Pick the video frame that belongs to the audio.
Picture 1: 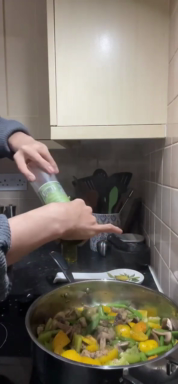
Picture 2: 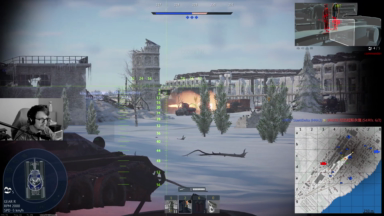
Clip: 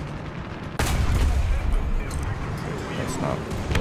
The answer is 2